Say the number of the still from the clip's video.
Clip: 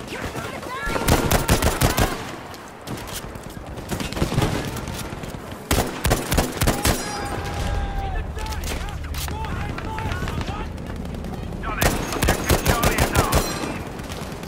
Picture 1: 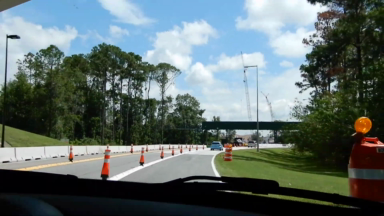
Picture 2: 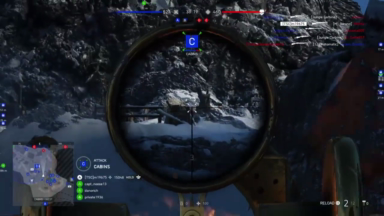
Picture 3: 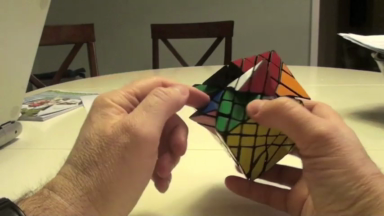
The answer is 2